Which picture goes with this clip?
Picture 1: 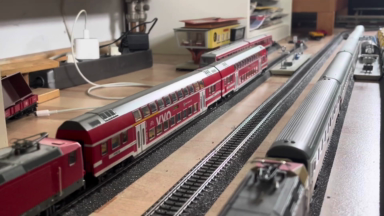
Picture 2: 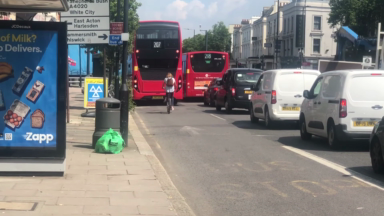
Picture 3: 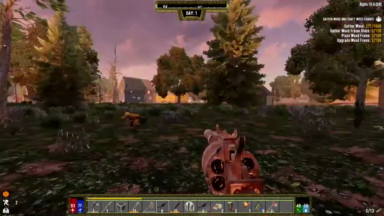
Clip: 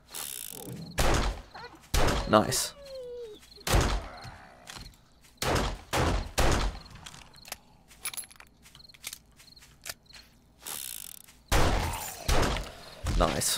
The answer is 3